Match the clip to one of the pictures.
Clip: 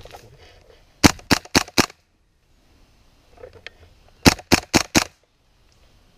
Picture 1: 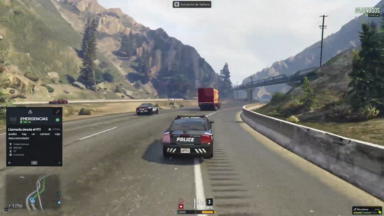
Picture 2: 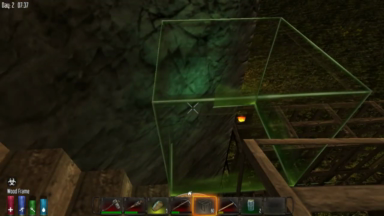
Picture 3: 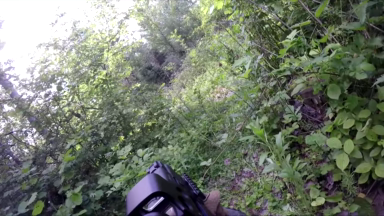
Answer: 3